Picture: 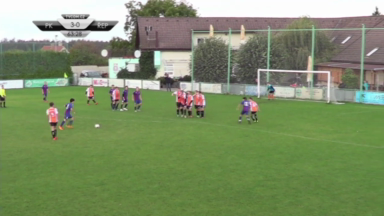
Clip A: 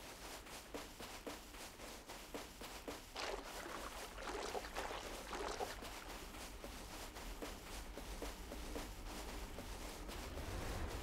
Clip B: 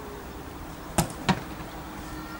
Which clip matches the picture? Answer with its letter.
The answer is B